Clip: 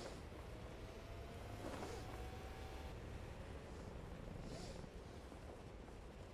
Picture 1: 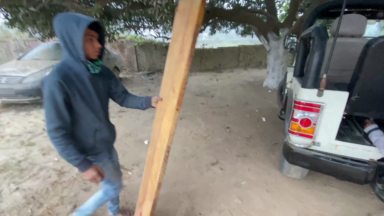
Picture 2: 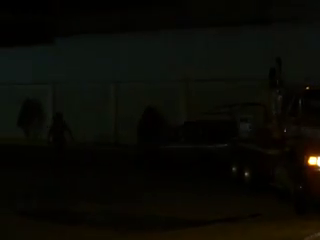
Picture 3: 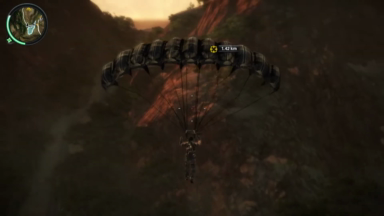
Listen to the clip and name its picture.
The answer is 3